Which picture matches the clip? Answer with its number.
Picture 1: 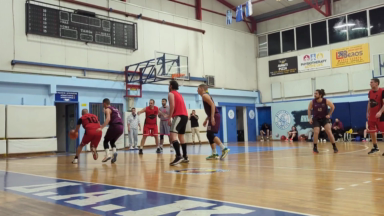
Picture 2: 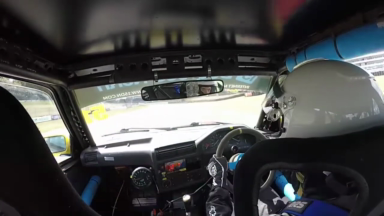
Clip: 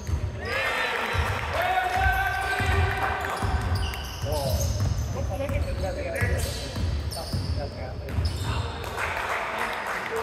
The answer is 1